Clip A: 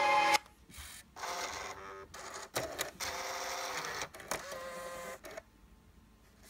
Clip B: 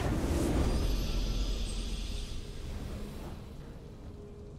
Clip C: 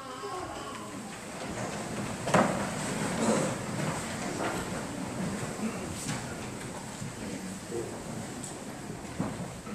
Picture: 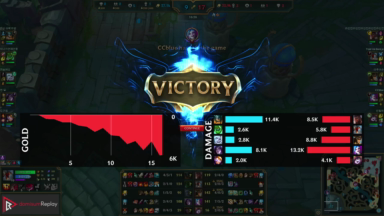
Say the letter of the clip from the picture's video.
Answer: B